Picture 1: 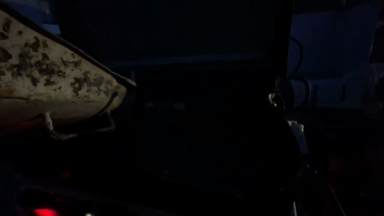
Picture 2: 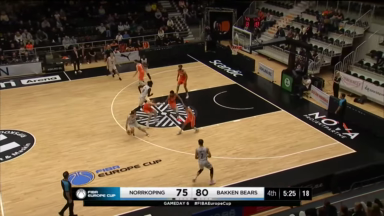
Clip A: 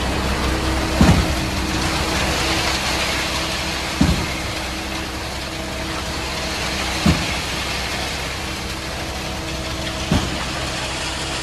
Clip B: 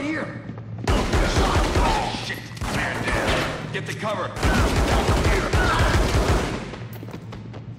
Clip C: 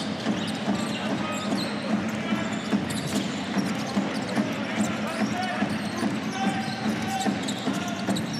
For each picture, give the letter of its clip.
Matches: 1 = A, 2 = C